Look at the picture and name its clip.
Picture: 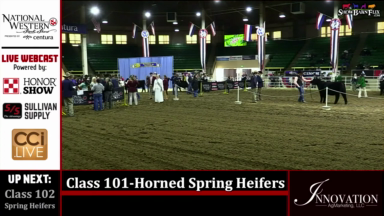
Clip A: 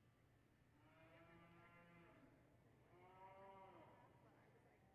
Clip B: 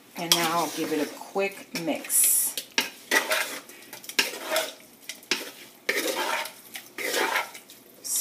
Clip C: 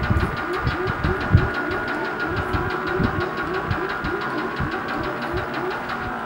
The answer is A